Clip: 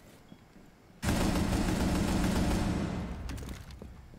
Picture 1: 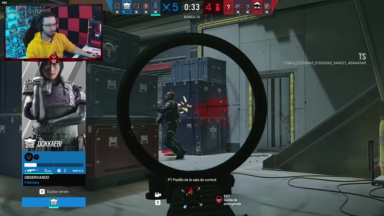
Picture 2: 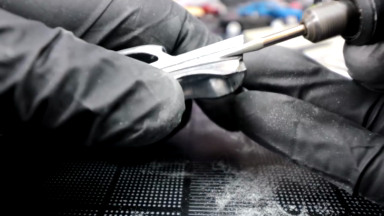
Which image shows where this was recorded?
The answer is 1